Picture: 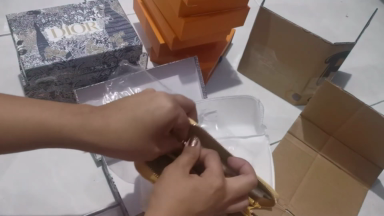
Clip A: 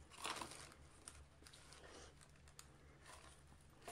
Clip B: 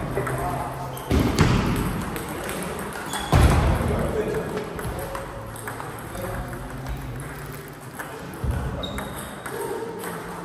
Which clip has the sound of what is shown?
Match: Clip A